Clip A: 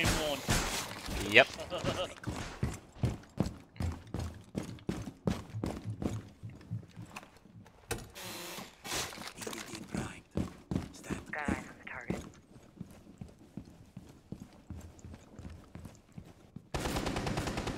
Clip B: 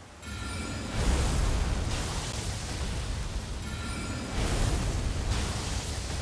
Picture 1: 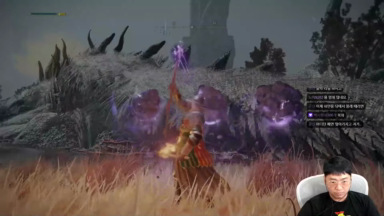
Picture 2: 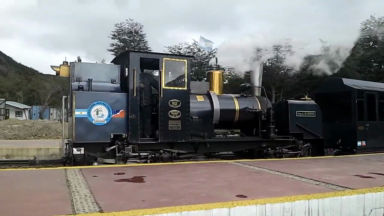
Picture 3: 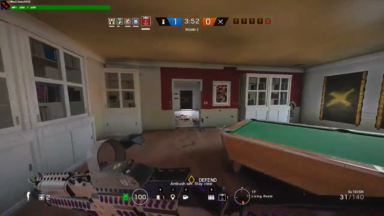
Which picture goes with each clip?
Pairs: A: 3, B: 1